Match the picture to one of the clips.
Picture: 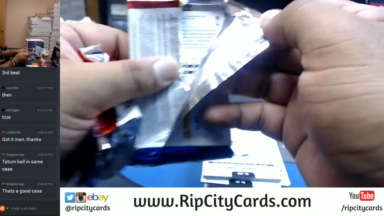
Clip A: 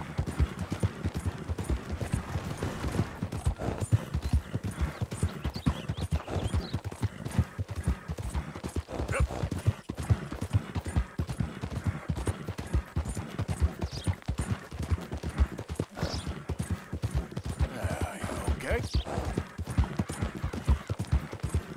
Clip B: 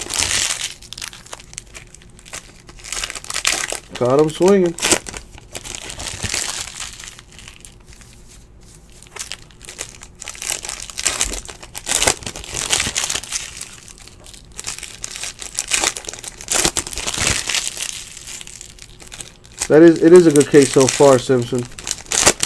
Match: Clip B